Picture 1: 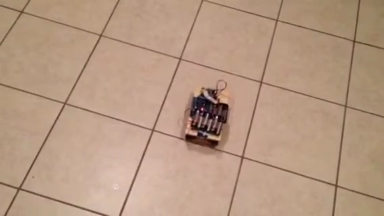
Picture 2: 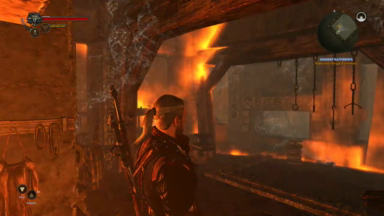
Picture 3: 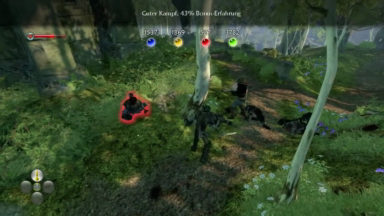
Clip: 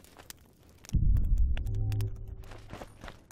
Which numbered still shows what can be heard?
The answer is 2